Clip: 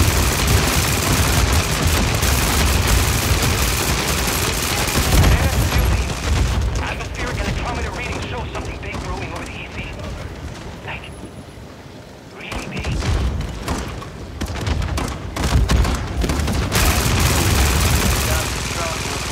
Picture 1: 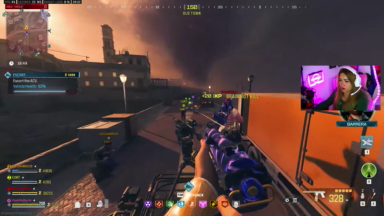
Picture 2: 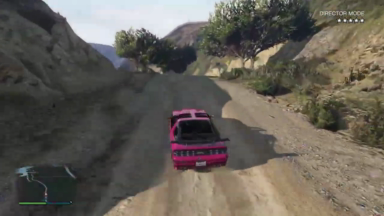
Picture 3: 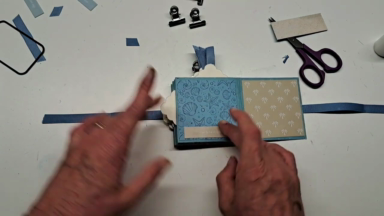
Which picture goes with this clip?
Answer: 1